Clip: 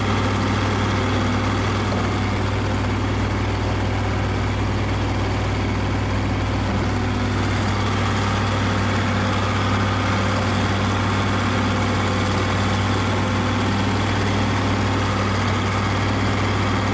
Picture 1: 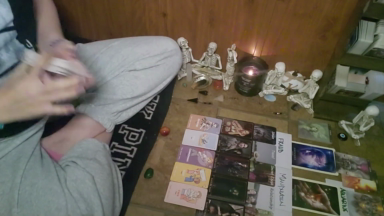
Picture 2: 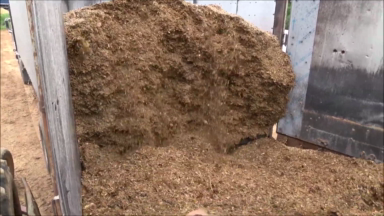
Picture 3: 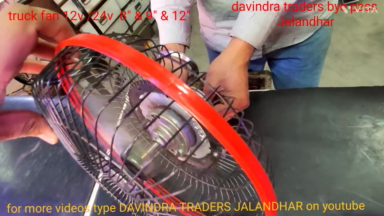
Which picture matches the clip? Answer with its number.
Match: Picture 2